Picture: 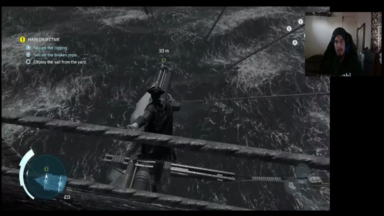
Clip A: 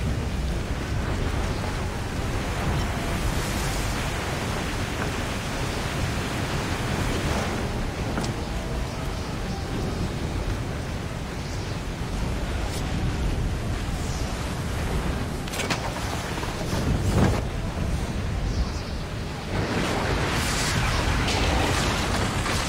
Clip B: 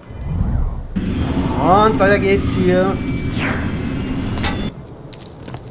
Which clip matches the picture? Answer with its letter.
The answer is A